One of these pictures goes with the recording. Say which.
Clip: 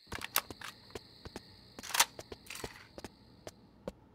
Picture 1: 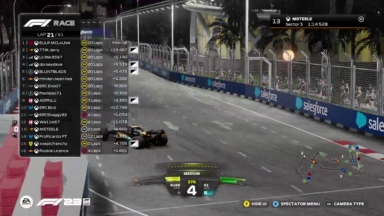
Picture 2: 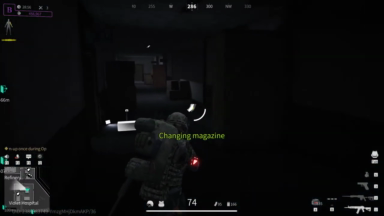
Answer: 2